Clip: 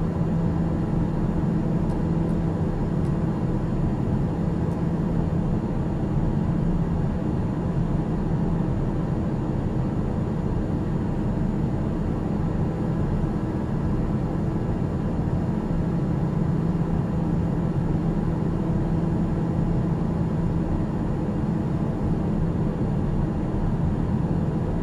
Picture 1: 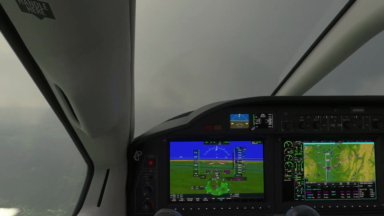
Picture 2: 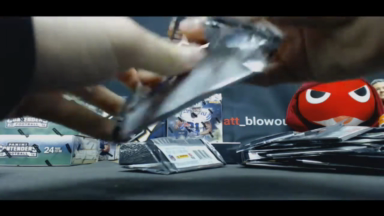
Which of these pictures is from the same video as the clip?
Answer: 1